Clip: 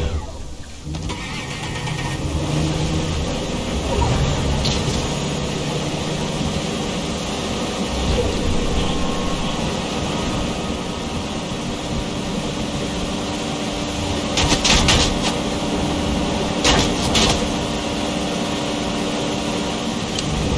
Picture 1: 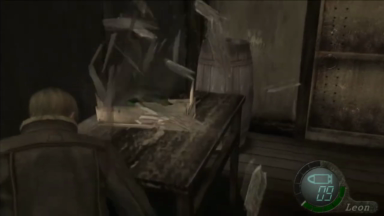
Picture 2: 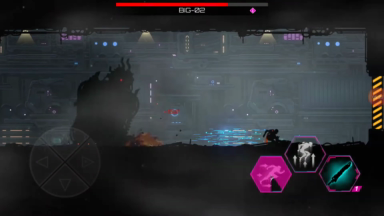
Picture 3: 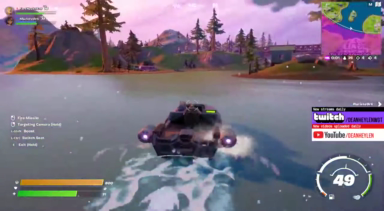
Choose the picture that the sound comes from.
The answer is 3